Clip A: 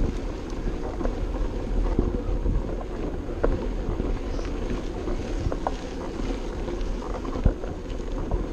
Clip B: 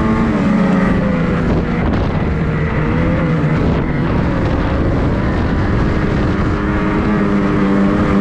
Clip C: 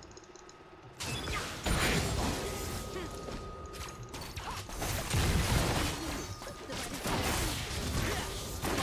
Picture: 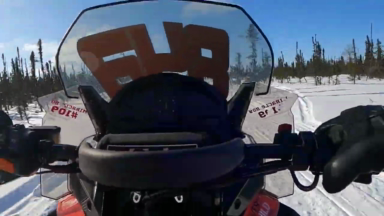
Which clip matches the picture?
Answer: B